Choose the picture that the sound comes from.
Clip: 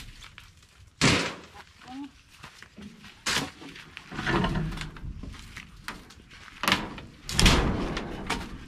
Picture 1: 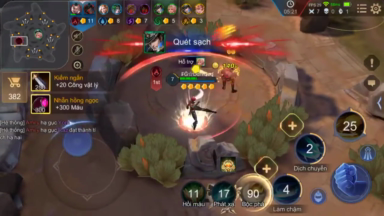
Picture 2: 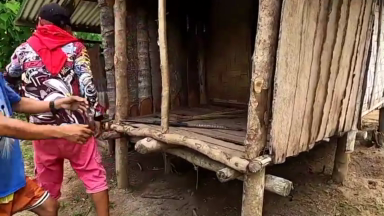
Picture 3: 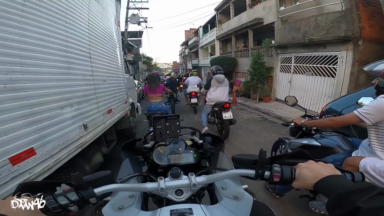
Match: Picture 2